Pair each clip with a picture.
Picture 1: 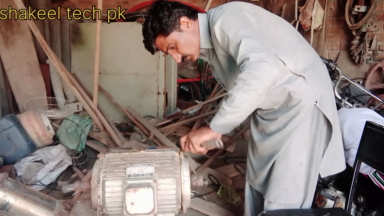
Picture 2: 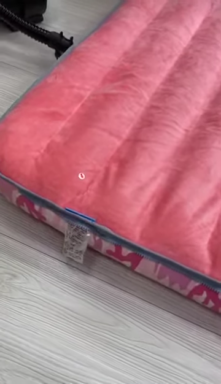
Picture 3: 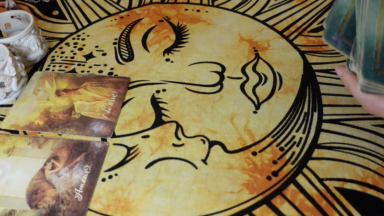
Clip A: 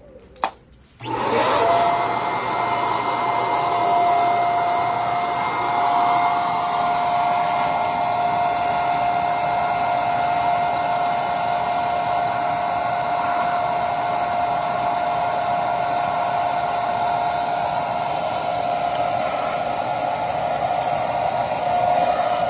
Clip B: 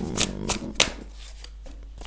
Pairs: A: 2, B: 3